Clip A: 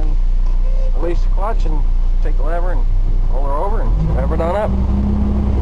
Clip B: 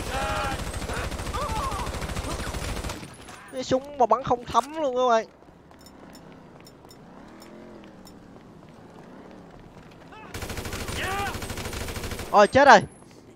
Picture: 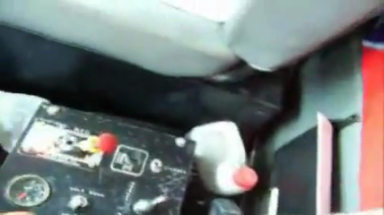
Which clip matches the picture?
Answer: A